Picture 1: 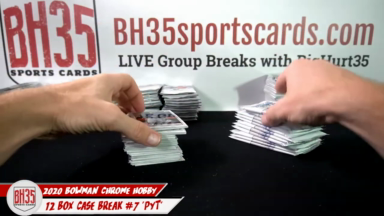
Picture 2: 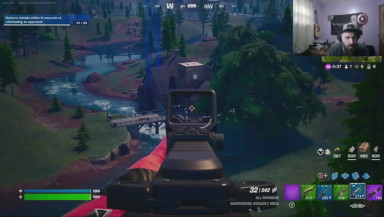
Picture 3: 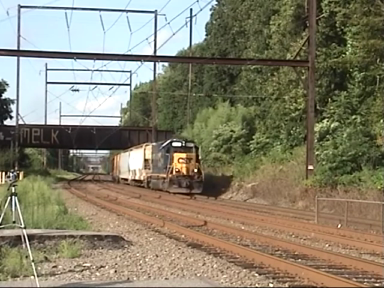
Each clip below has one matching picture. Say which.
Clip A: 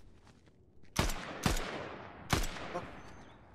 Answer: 2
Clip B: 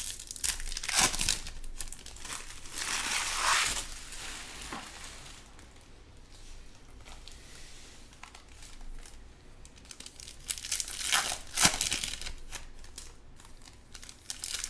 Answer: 1